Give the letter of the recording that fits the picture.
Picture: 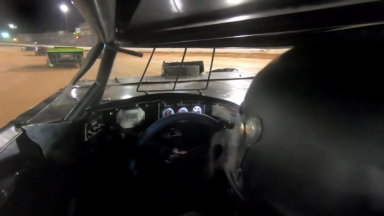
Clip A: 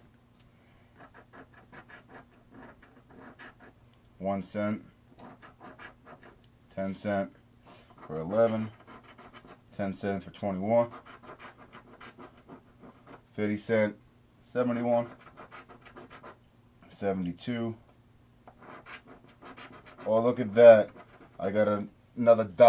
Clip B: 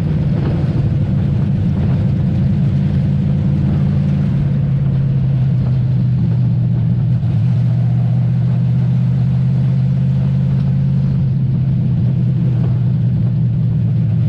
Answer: B